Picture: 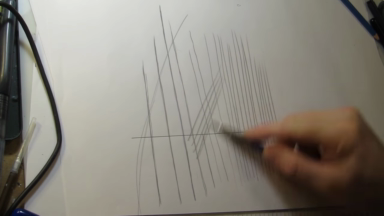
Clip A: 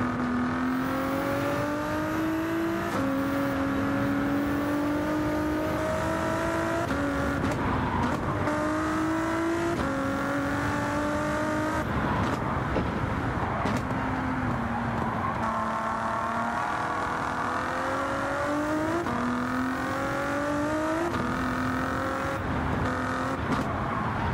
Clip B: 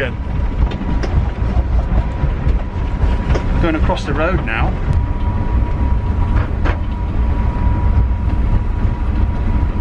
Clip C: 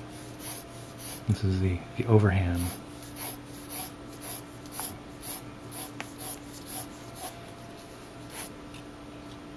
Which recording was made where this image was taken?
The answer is C